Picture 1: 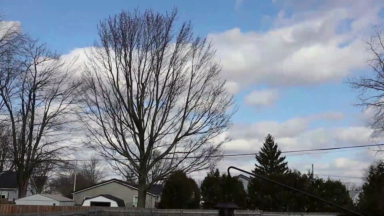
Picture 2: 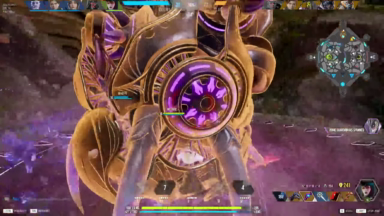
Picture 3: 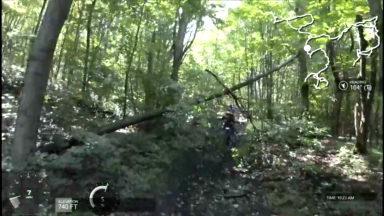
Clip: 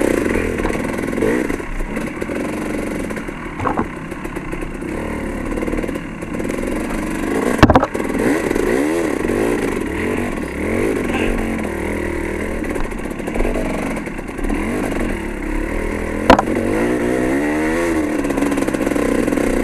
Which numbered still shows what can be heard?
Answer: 3